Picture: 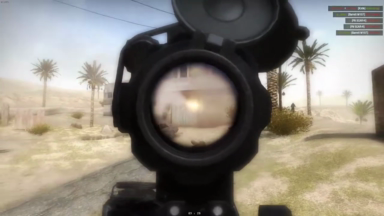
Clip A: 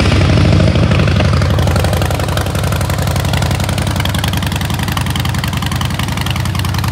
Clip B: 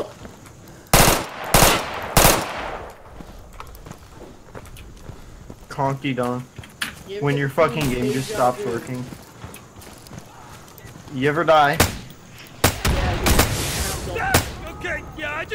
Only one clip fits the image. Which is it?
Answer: B